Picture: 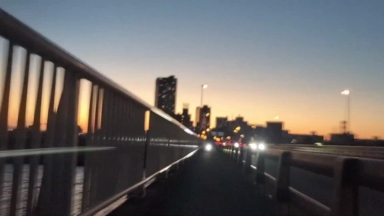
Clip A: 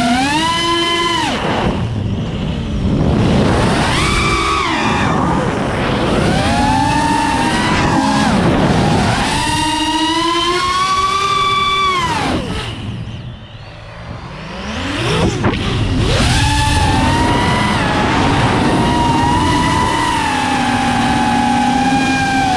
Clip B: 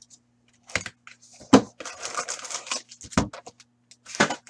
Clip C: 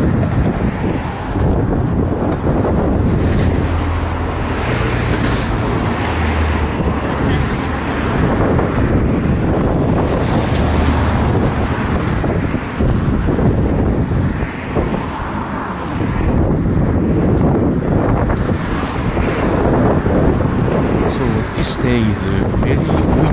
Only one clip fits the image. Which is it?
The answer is C